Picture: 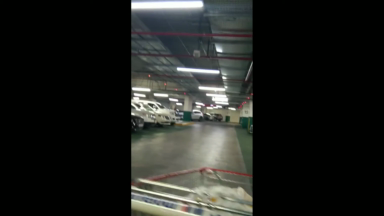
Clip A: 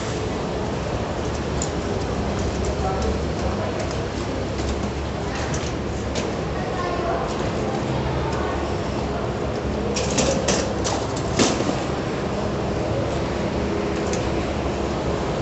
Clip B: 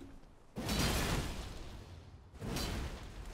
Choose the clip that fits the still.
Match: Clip A